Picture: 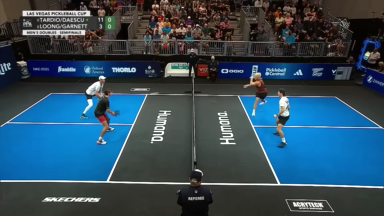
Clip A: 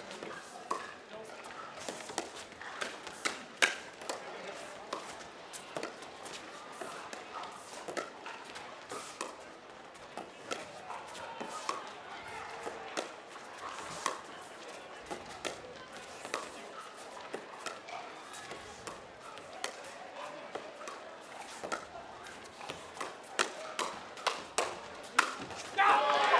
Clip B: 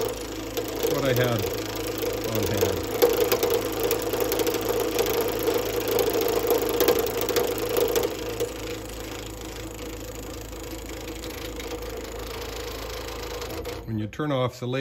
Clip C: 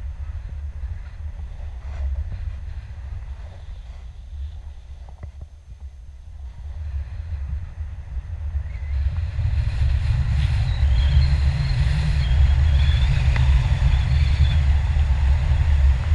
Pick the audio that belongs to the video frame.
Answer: A